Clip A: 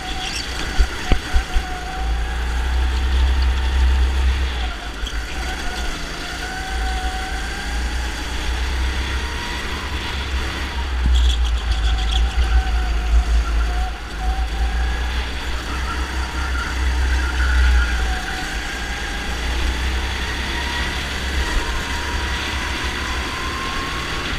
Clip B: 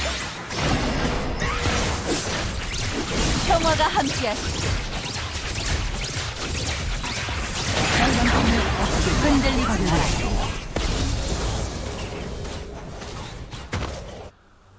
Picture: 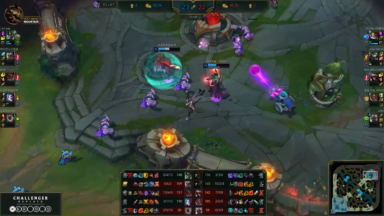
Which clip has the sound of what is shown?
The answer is B